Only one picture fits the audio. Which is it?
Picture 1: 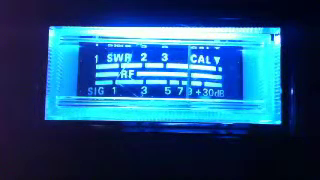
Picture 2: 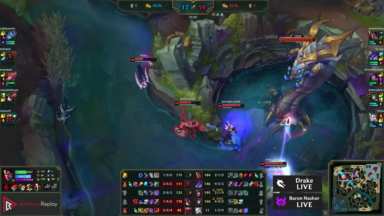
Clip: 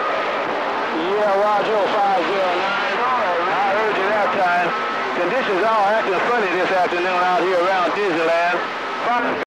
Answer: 1